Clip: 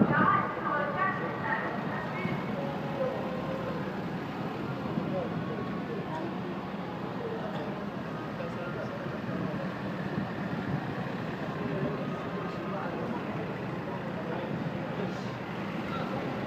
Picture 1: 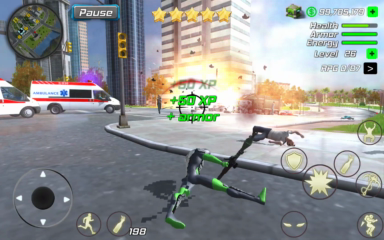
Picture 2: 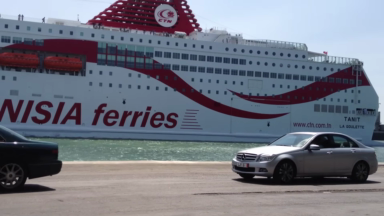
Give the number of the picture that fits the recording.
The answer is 2